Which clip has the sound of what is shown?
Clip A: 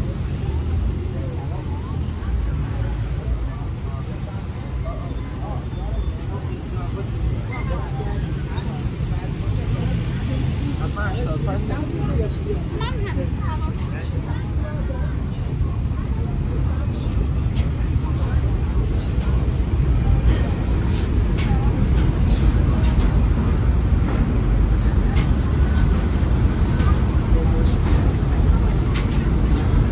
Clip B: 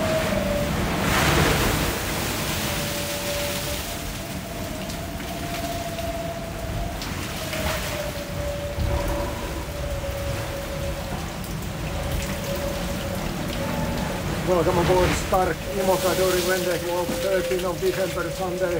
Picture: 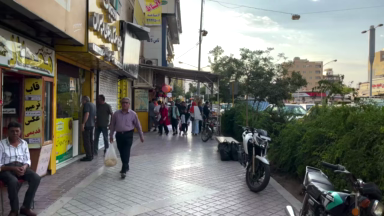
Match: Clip A